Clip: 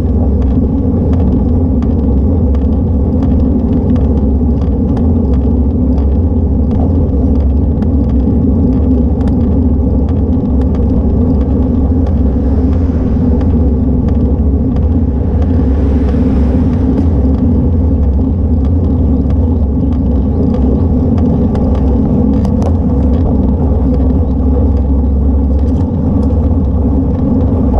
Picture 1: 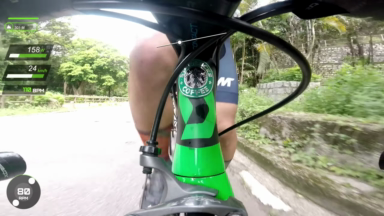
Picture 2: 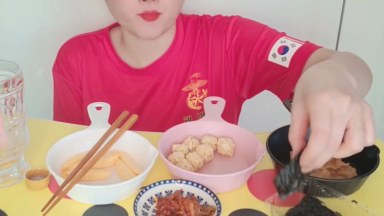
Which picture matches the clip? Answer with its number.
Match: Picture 1